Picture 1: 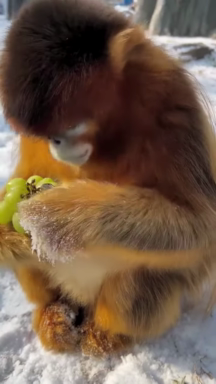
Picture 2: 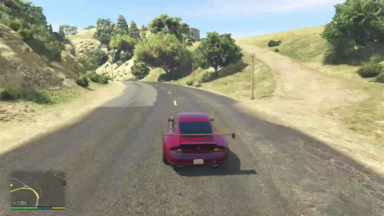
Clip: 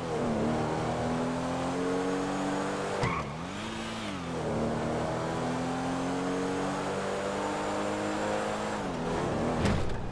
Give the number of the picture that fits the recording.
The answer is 2